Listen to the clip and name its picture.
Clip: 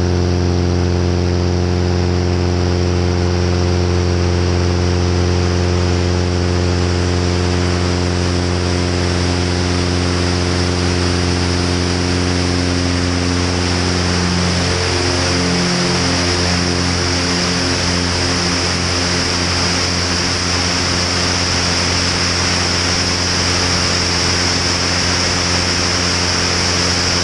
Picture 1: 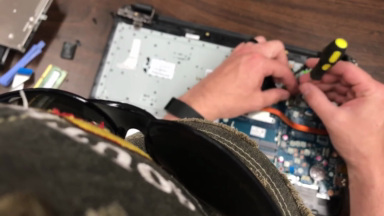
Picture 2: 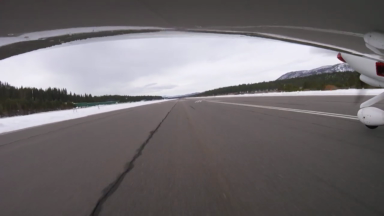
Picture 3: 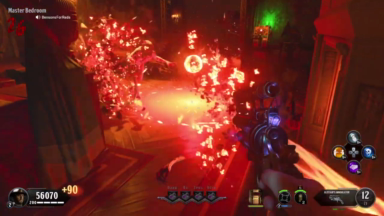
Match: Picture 2